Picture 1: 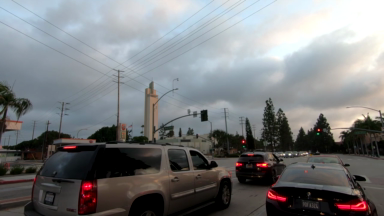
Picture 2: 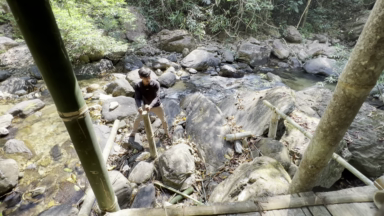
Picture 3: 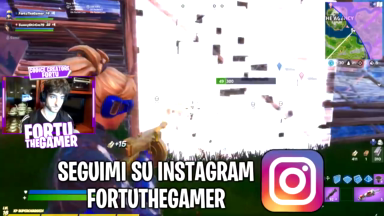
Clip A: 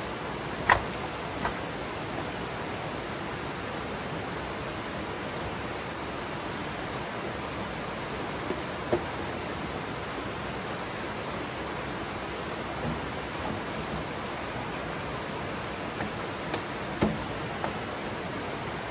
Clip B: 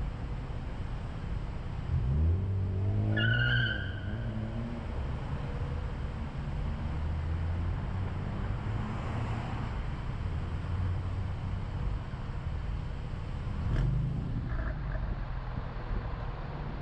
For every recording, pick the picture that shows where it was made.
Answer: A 2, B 1